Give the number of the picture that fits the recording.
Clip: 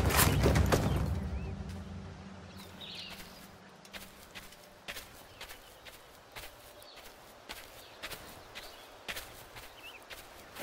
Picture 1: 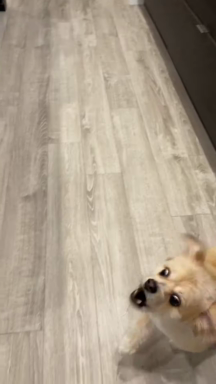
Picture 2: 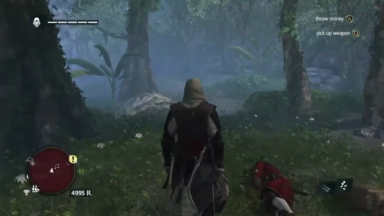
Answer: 2